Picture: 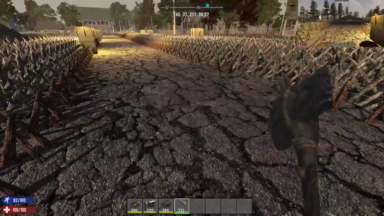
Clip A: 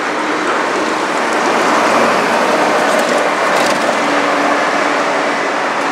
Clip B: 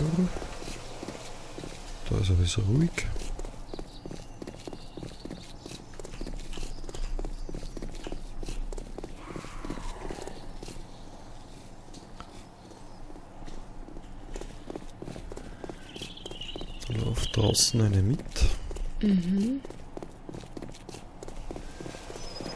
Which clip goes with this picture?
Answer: B